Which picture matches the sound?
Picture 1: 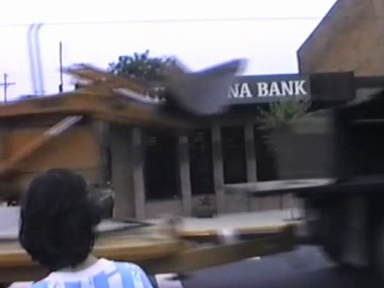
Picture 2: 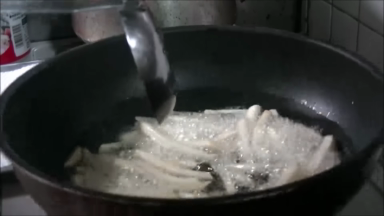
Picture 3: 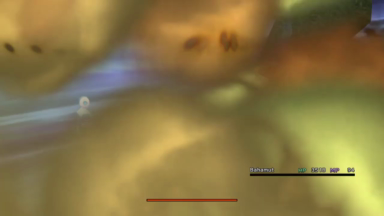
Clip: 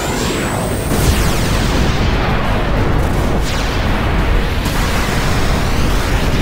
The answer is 3